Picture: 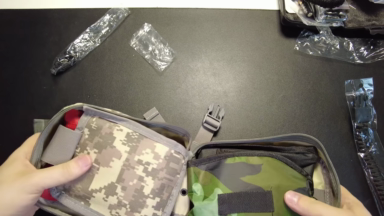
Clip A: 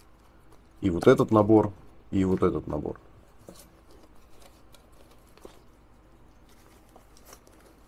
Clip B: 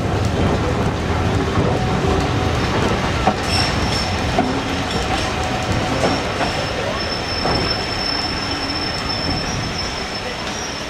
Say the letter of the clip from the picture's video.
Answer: A